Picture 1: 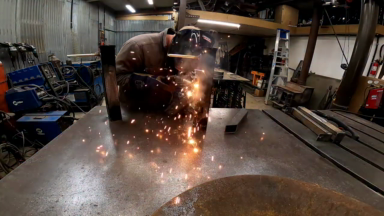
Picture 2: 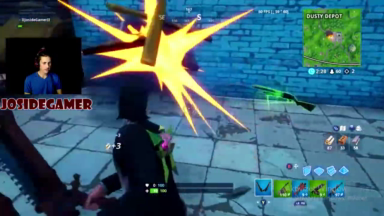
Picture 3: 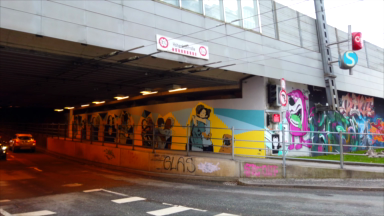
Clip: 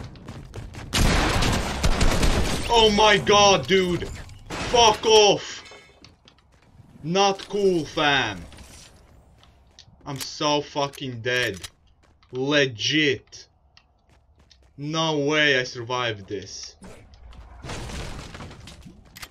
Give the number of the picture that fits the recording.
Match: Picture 2